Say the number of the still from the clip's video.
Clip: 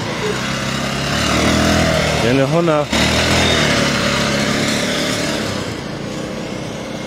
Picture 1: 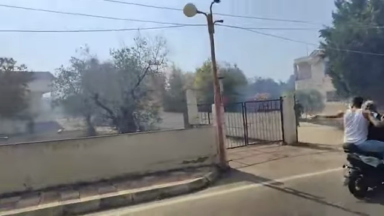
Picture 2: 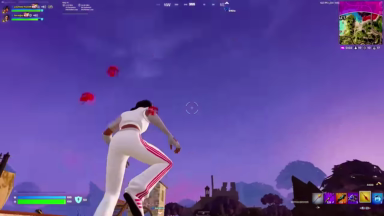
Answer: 1